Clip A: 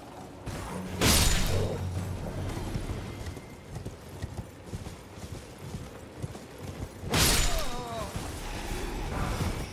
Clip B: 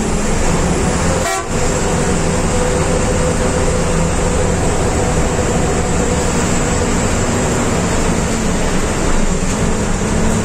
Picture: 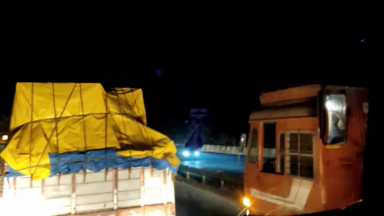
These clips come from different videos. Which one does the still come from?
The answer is B